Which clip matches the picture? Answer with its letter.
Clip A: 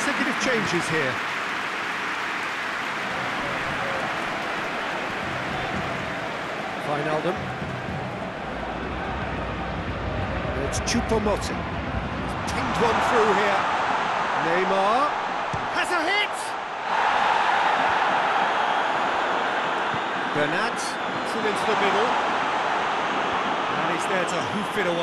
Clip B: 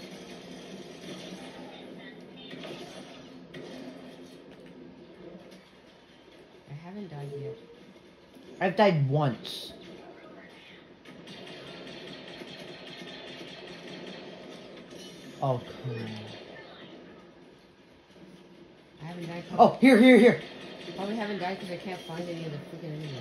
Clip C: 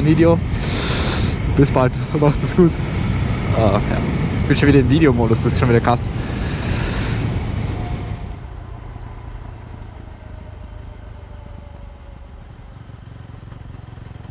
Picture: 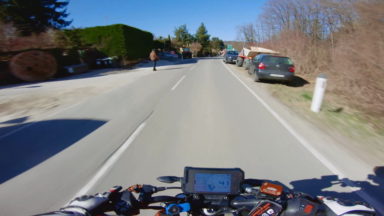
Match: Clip C